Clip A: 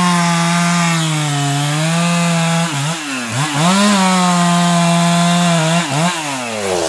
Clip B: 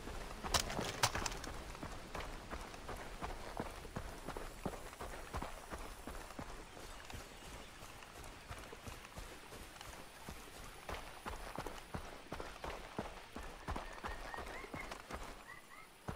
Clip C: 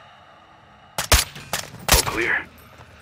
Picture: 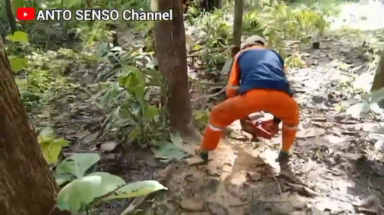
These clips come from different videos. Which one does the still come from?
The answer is A